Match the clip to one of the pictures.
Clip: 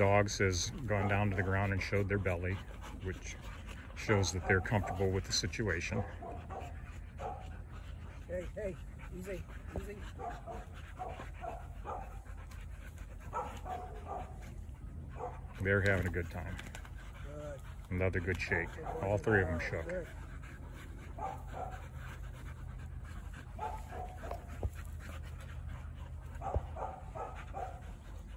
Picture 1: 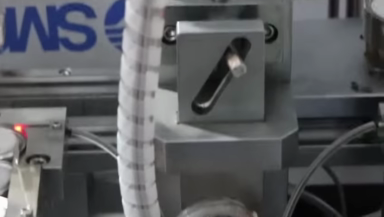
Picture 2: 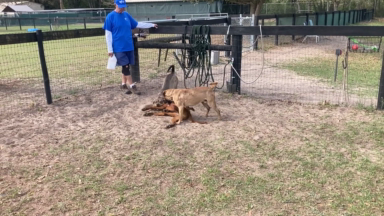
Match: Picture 2